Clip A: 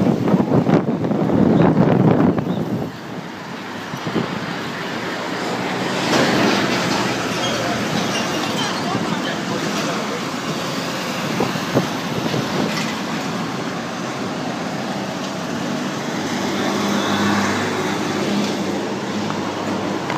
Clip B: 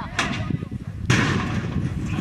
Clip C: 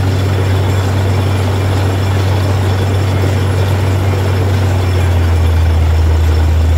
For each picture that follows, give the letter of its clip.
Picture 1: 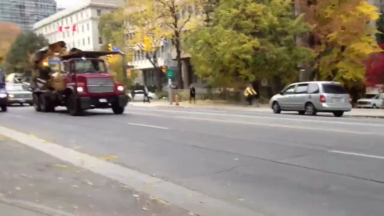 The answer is A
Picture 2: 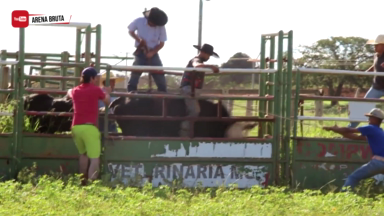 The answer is B